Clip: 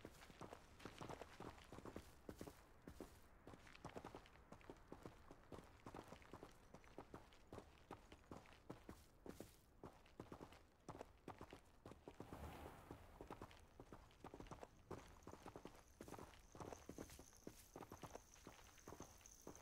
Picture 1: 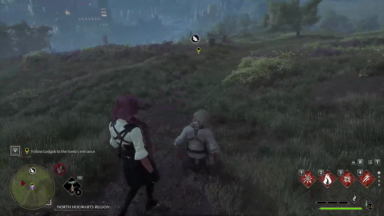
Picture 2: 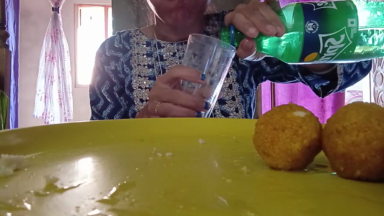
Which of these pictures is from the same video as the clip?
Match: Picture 1